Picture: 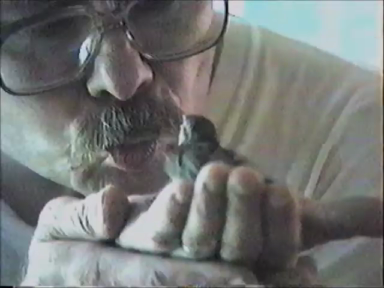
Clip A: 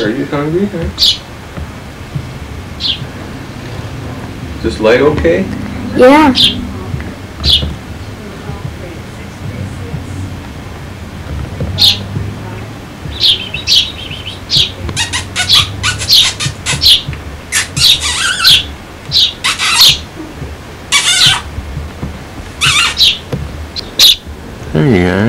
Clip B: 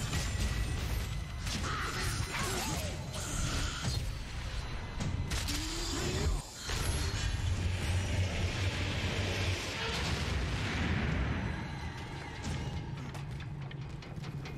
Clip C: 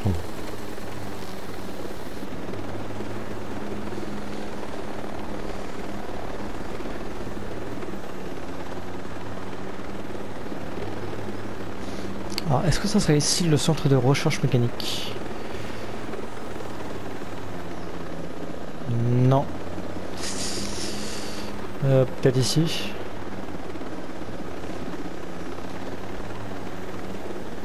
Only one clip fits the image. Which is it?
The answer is A